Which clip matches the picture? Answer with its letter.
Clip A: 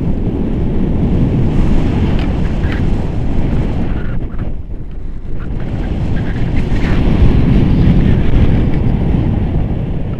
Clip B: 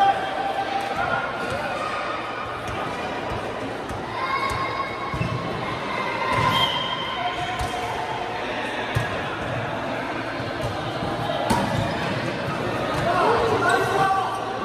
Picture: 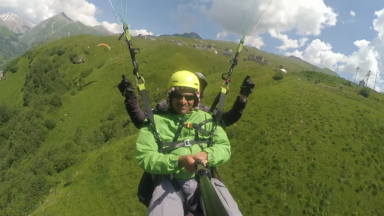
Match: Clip A